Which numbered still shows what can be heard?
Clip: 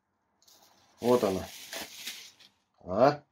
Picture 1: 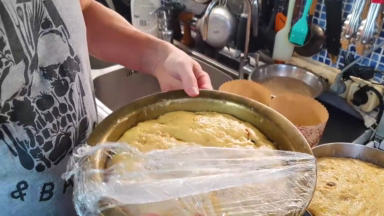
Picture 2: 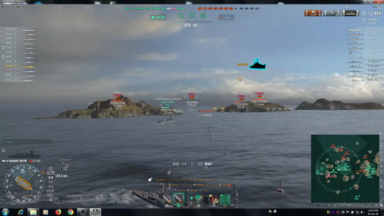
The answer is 1